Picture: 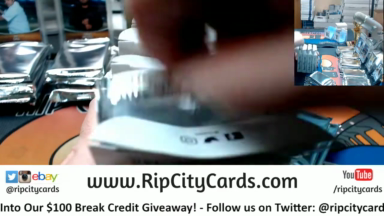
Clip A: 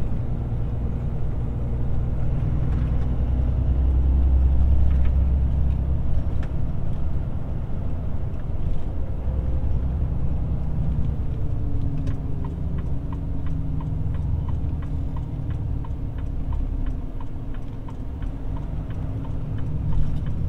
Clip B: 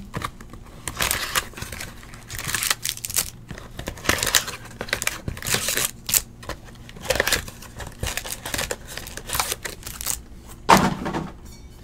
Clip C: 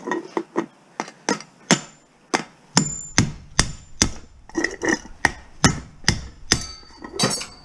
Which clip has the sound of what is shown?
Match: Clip B